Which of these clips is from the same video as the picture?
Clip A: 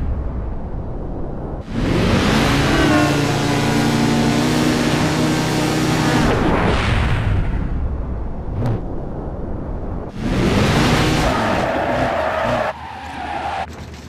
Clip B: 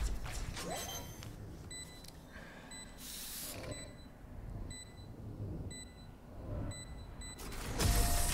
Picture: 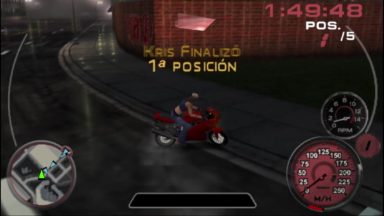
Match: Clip A